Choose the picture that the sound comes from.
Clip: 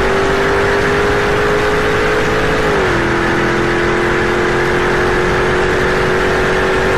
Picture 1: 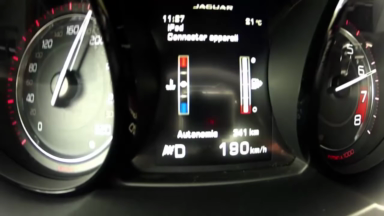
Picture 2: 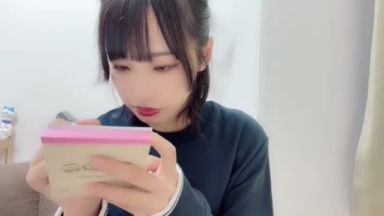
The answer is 1